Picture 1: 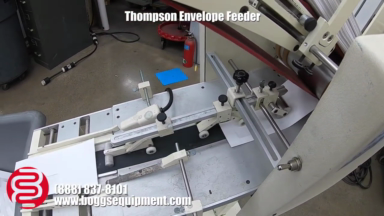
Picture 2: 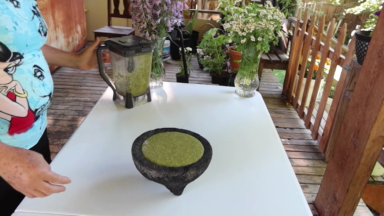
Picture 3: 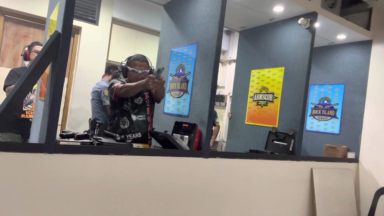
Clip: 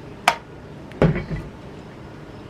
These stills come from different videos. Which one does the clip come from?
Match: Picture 2